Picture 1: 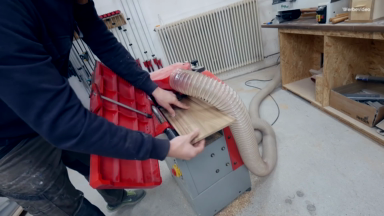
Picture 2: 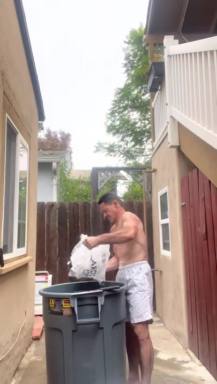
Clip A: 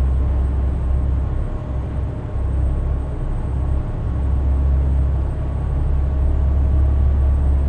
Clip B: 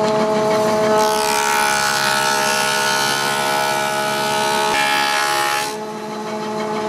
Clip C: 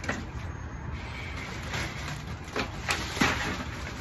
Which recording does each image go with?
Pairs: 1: B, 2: C